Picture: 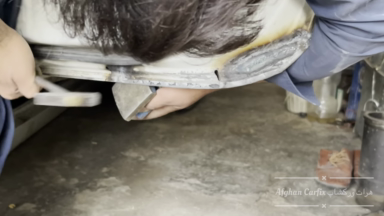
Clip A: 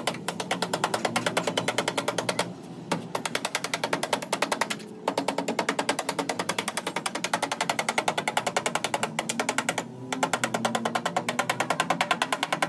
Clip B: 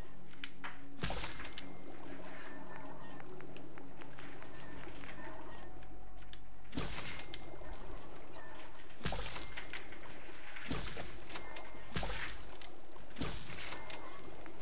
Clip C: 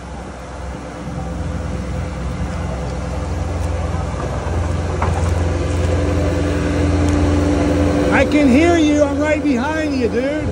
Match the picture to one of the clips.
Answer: A